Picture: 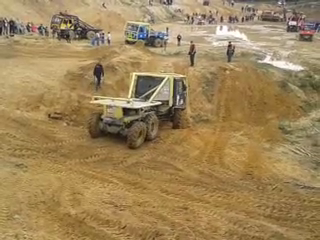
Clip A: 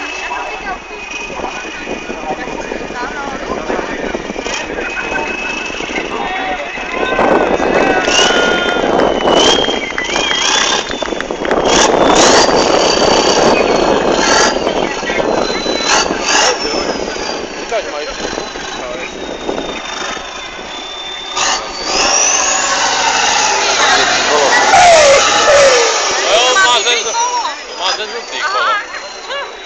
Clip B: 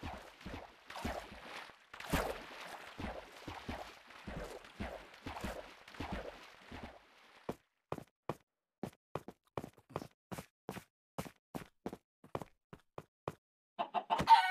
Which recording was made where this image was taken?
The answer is A